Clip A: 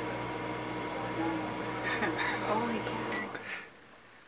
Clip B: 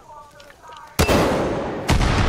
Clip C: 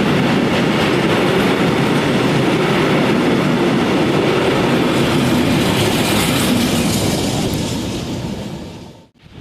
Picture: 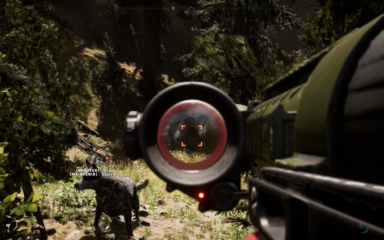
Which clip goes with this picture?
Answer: B